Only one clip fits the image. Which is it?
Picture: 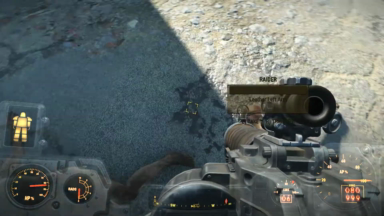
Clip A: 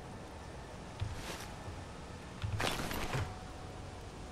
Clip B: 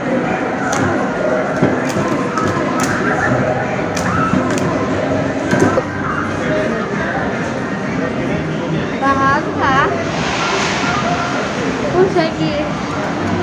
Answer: A